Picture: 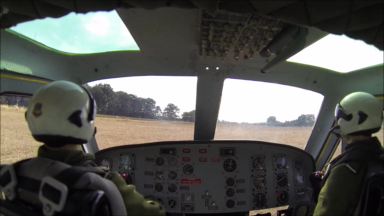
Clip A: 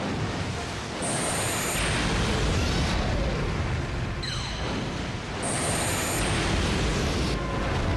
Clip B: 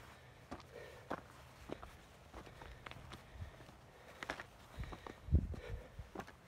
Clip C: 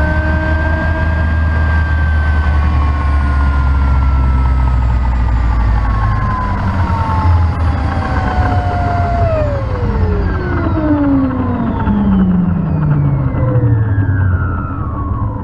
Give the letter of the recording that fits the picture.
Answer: C